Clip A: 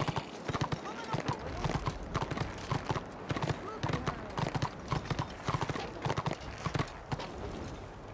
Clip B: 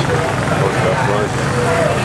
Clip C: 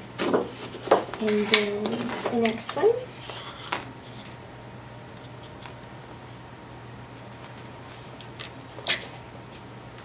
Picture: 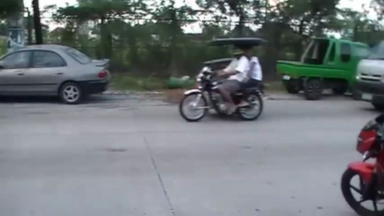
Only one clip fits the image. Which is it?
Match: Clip B